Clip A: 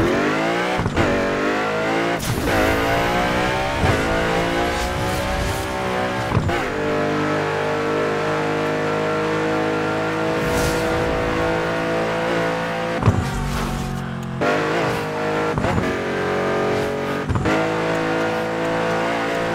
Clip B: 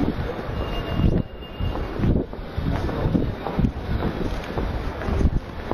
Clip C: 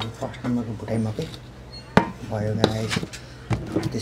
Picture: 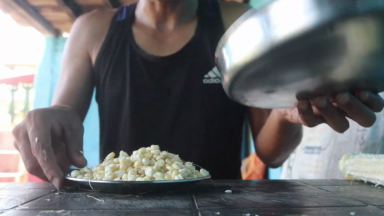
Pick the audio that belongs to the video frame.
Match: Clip C